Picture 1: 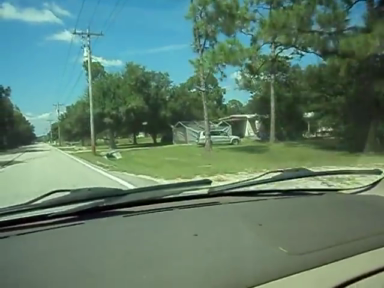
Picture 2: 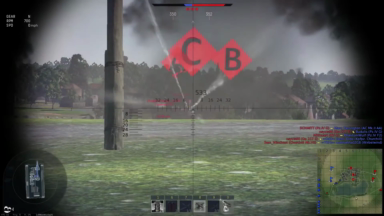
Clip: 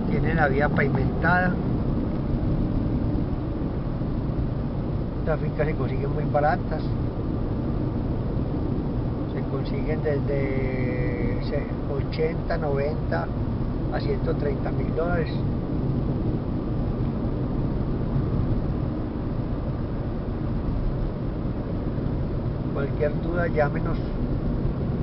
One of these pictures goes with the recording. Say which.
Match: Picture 1